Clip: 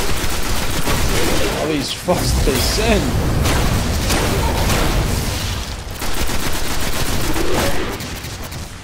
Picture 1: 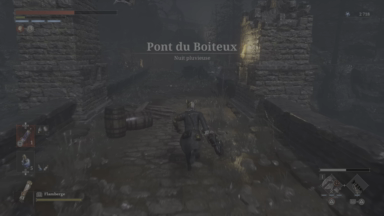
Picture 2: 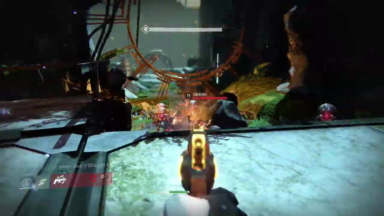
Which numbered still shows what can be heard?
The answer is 2